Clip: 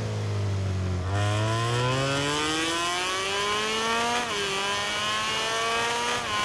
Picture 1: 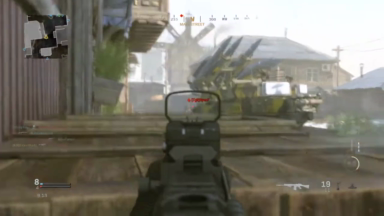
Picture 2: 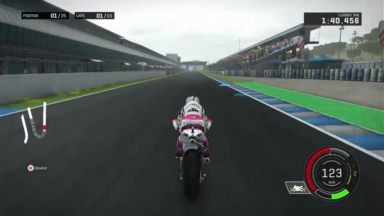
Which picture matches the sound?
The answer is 2